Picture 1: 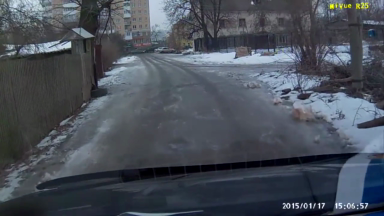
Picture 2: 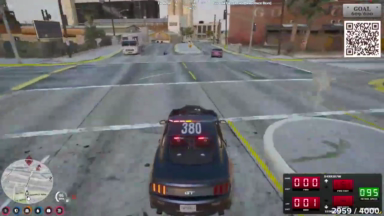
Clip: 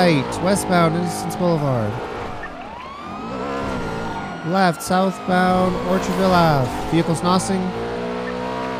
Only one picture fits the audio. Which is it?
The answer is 2